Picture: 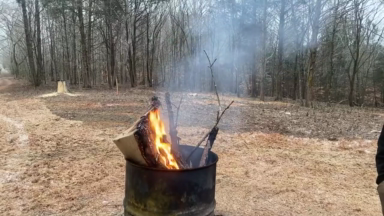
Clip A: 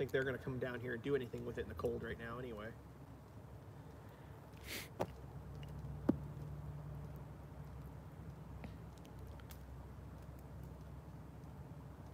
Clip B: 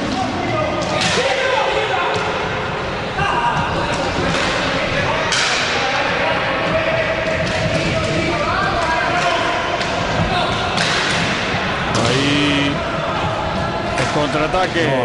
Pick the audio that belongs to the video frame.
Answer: A